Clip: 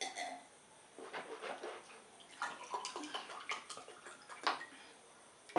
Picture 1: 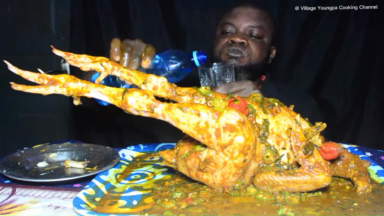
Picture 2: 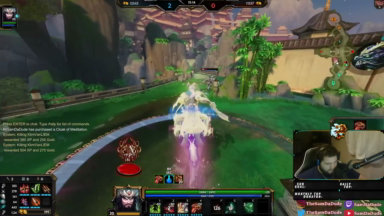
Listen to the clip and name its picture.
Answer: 1